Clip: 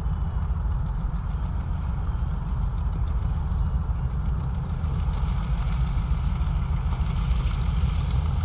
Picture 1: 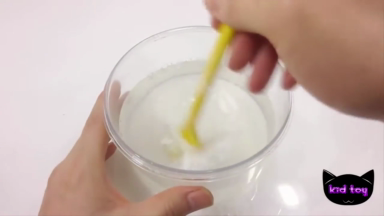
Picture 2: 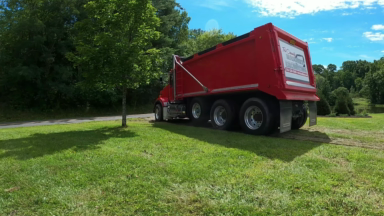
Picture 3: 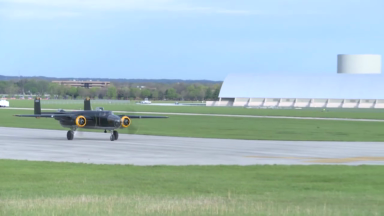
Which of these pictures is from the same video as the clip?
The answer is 3